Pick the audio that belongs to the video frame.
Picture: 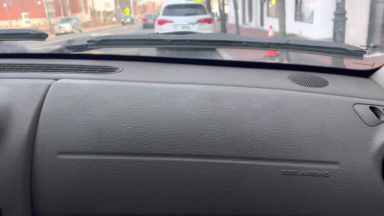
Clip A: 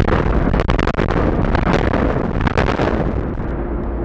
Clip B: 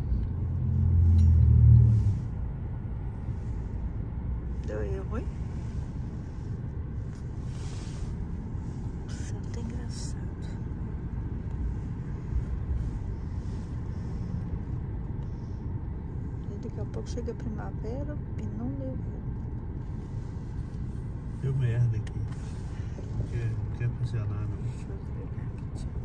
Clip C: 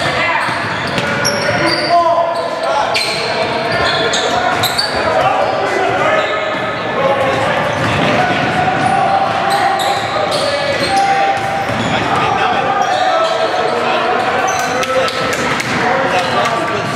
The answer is B